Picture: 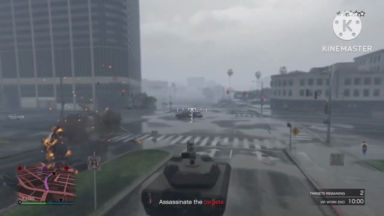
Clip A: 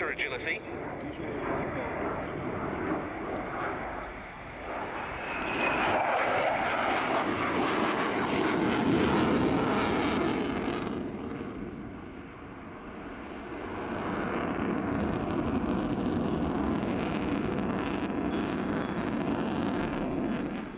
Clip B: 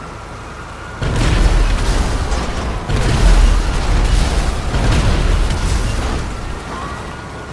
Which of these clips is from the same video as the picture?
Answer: B